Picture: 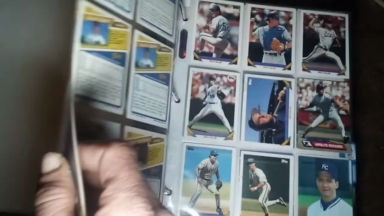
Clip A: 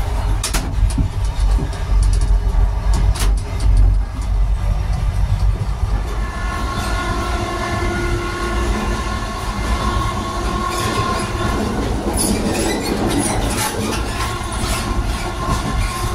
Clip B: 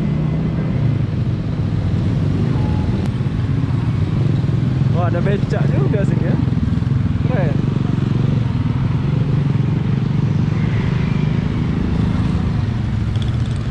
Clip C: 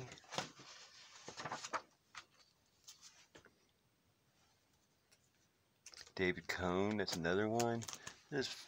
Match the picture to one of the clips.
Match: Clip C